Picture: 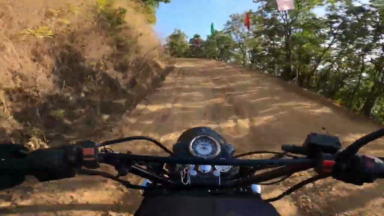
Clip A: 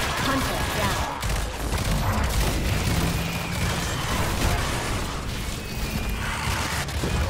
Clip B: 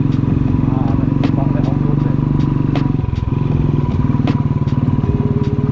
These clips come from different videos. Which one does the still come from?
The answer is B